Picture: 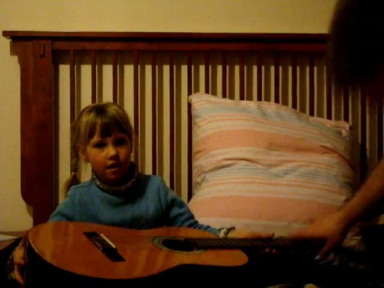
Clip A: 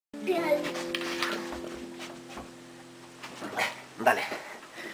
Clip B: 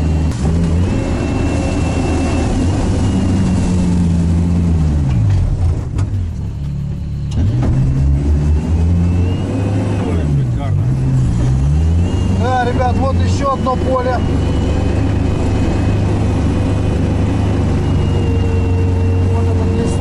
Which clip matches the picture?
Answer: A